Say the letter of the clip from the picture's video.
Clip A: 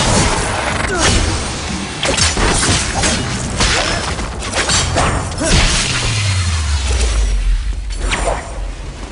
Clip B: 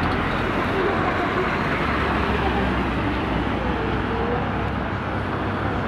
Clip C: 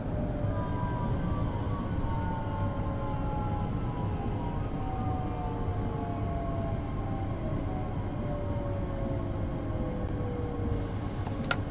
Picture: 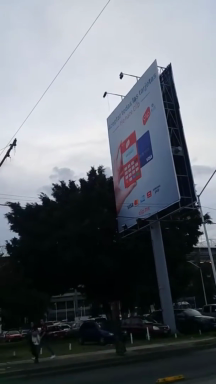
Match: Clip B